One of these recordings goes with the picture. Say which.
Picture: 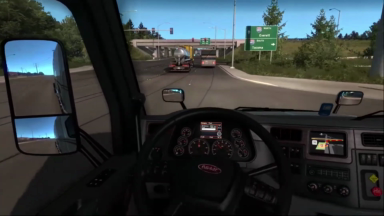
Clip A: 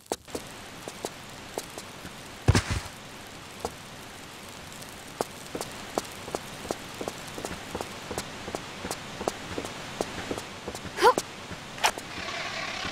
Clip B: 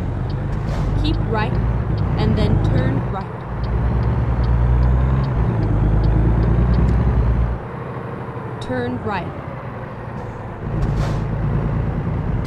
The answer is B